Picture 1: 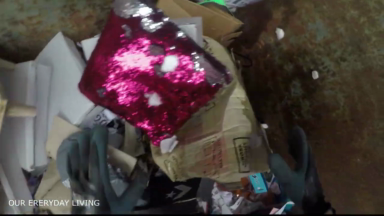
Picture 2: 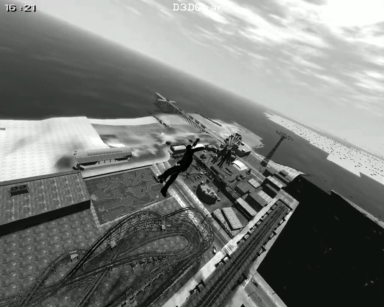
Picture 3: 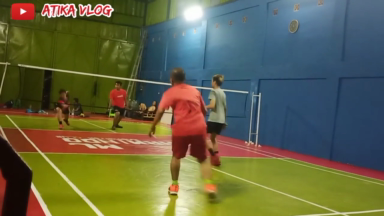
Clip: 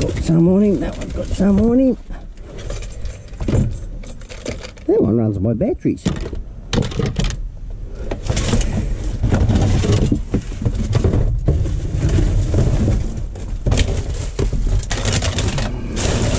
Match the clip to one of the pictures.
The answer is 1